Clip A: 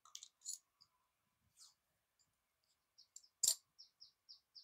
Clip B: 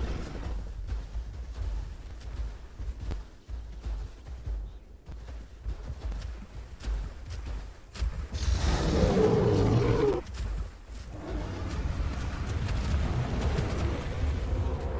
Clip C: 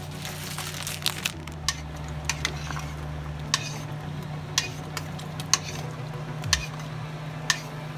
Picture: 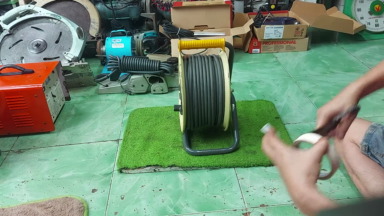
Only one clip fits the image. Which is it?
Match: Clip A